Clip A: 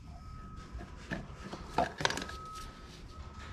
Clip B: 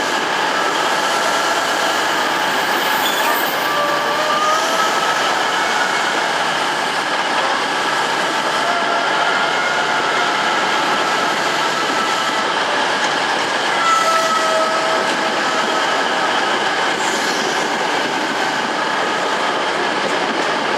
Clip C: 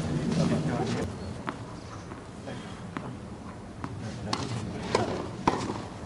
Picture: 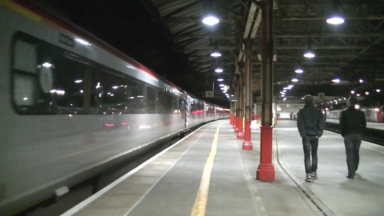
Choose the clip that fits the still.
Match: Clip B